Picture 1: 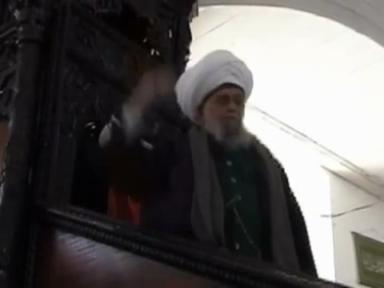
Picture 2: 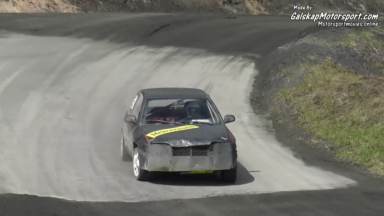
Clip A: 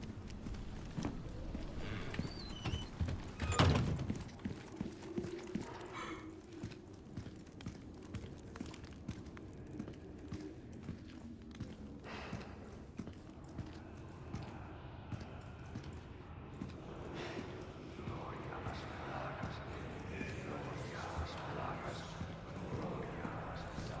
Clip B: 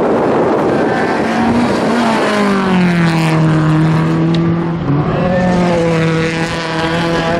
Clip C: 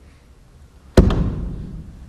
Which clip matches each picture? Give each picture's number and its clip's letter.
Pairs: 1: C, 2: B